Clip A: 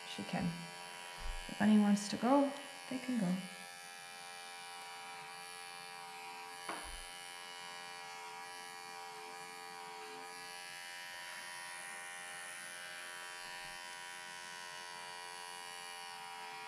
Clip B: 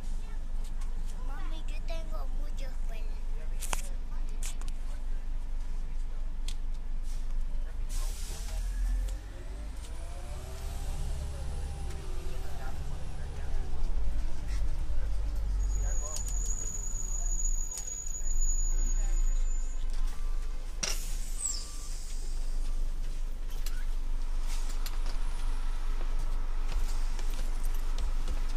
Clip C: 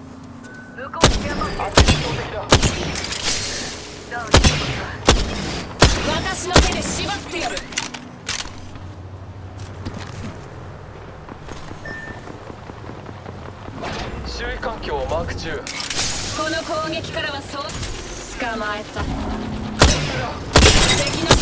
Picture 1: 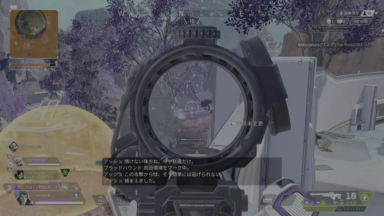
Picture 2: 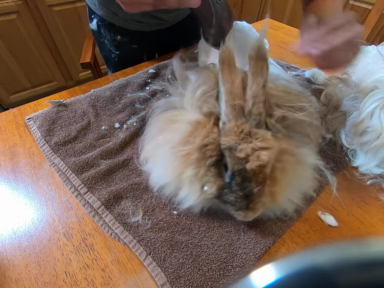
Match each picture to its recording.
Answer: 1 C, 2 A